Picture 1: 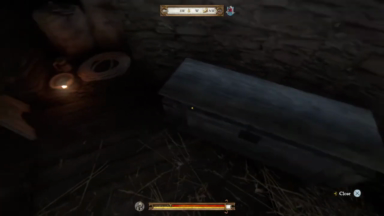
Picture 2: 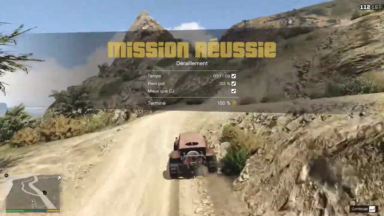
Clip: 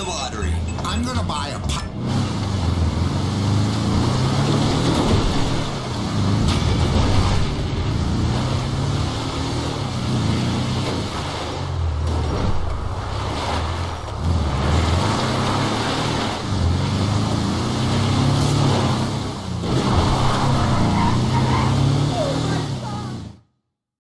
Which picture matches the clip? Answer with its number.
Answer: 2